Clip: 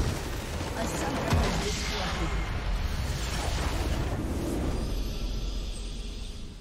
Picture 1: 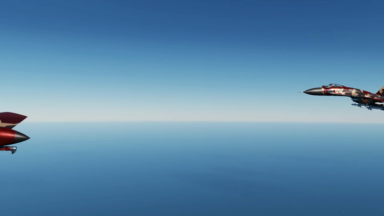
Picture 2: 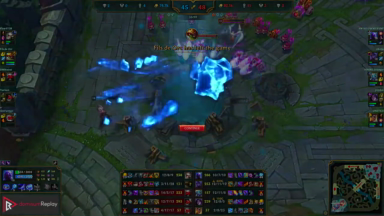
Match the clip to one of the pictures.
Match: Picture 2